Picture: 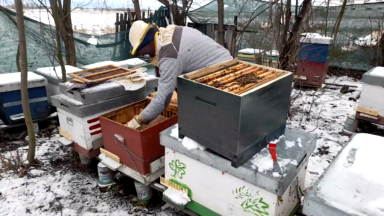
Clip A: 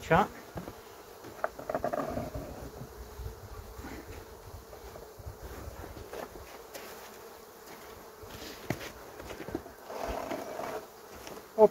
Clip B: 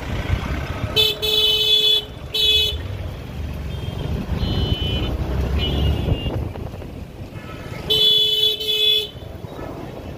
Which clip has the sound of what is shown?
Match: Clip A